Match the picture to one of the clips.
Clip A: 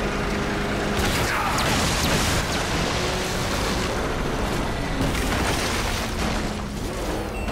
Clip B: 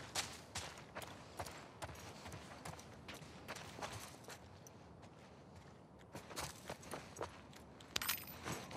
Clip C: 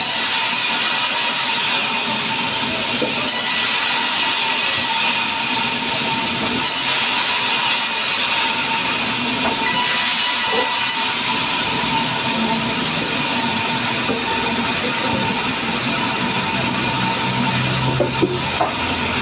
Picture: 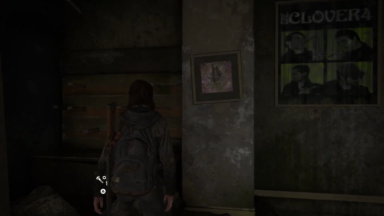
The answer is B